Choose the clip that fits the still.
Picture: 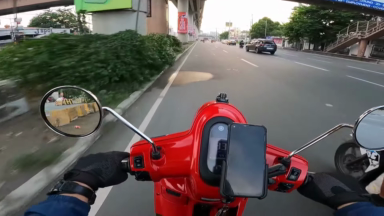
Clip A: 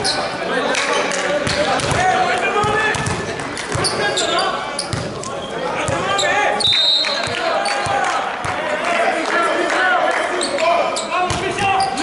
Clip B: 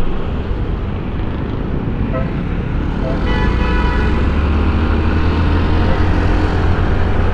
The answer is B